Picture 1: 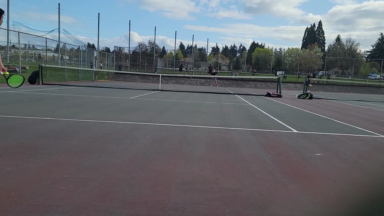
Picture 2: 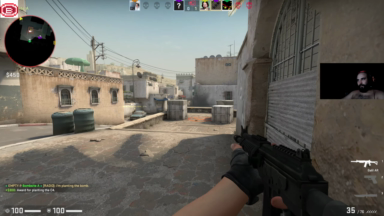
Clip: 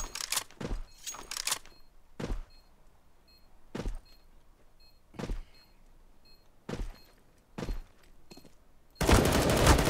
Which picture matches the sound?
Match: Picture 2